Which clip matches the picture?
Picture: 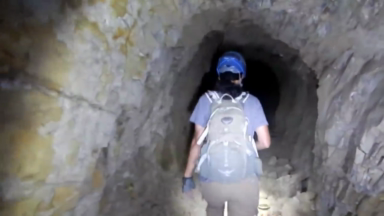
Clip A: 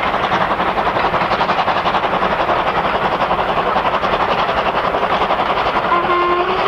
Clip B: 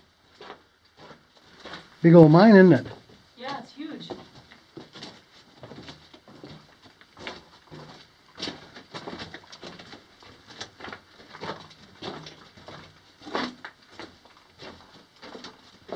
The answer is B